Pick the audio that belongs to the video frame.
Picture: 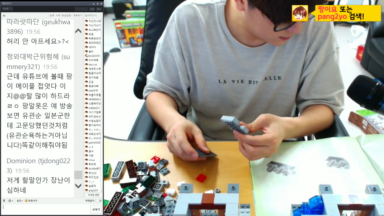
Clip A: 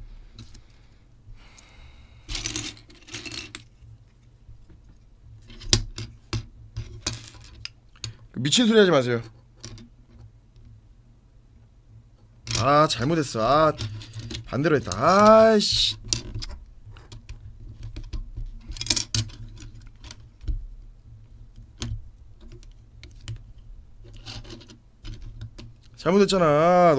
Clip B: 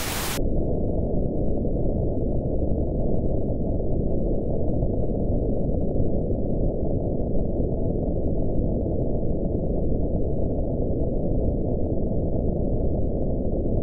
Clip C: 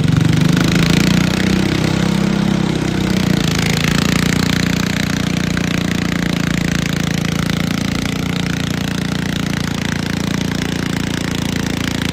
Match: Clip A